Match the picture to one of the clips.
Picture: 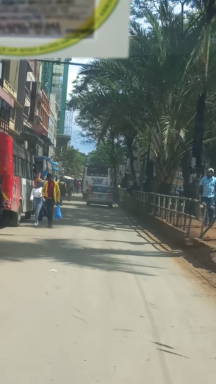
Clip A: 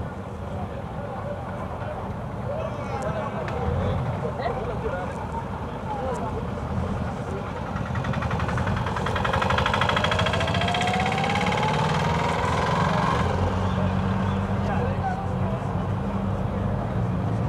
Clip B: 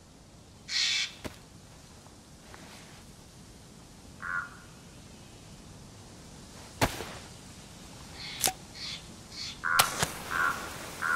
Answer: A